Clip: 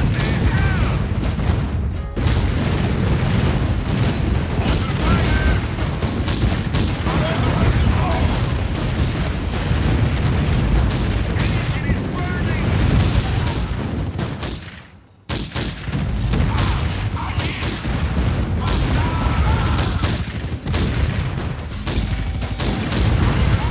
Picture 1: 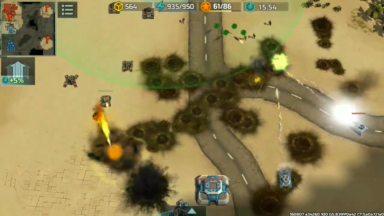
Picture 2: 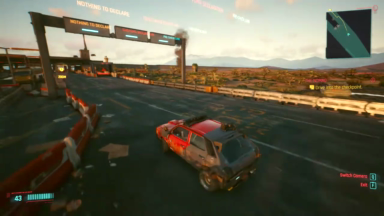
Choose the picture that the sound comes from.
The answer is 1